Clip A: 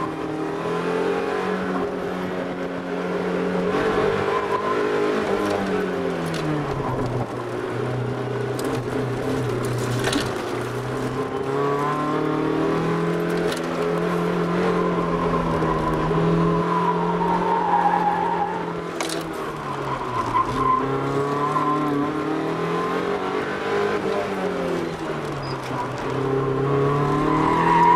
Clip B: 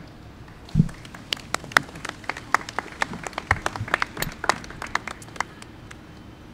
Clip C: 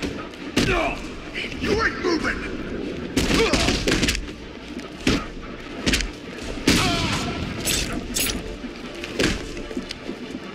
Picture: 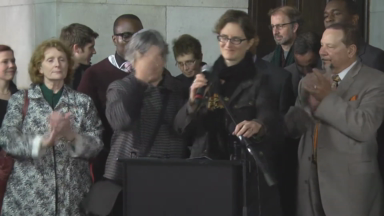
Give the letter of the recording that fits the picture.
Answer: B